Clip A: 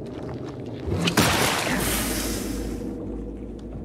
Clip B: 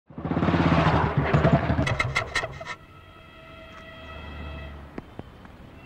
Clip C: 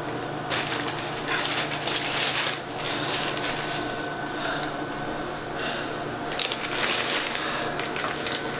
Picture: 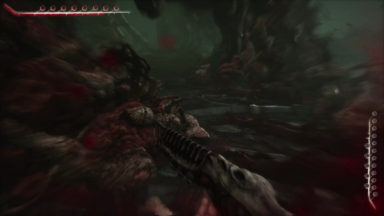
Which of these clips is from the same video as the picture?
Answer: A